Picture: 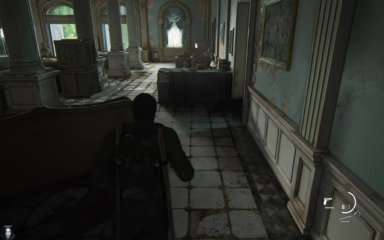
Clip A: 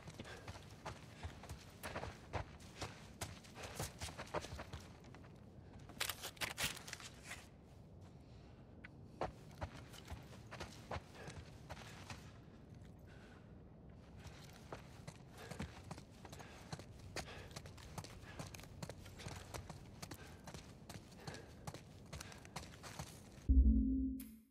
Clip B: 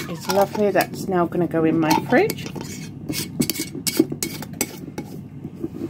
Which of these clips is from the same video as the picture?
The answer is A